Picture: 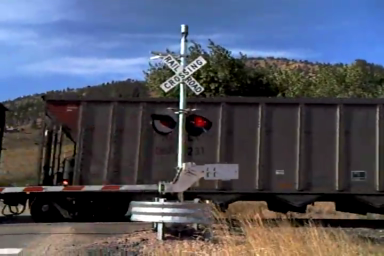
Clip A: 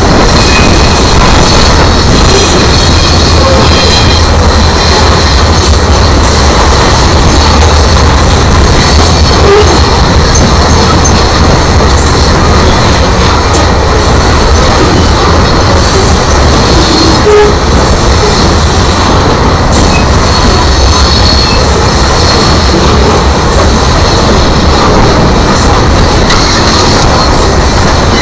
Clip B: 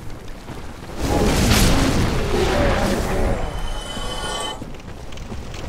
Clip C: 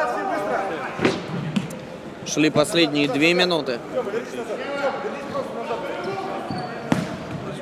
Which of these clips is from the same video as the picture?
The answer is A